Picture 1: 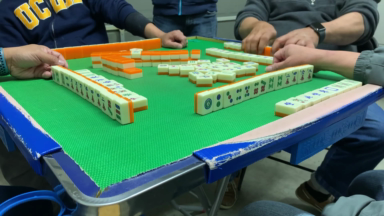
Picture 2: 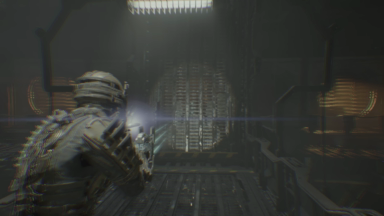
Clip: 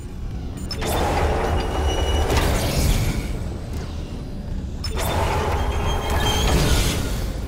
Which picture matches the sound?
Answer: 2